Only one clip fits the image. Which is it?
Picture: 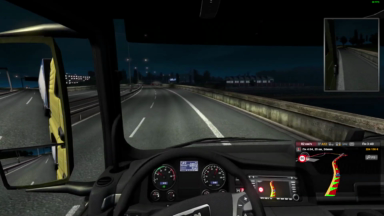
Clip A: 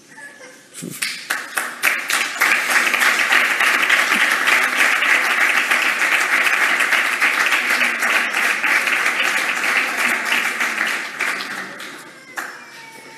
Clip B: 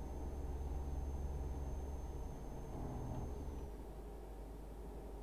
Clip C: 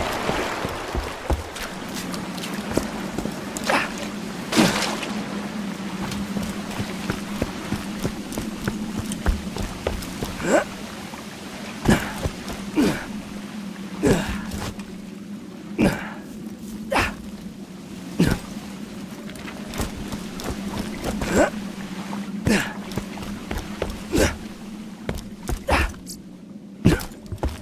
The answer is B